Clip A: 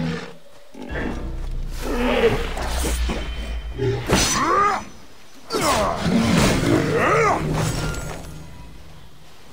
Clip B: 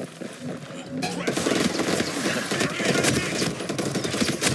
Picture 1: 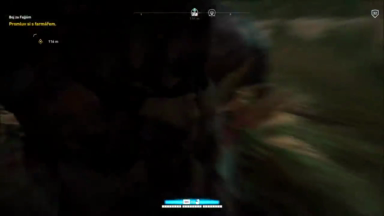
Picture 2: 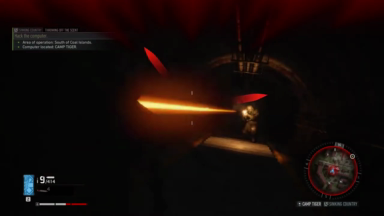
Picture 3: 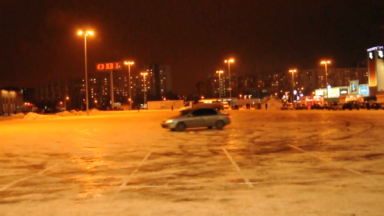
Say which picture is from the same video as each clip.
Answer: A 1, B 2